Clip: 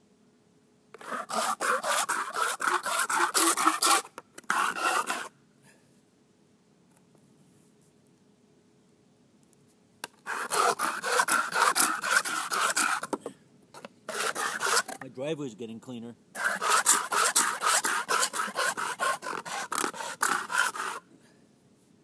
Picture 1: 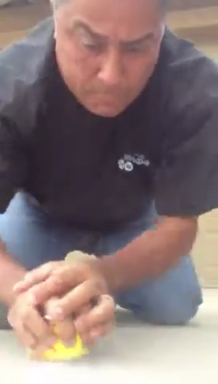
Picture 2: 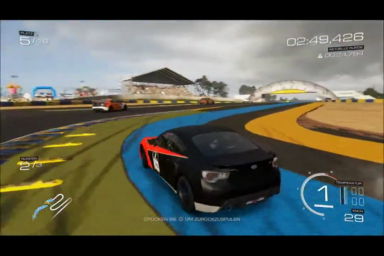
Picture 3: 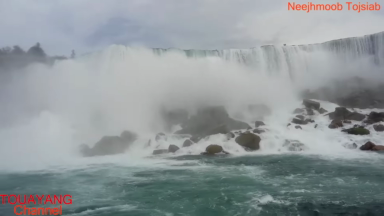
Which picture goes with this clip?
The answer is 1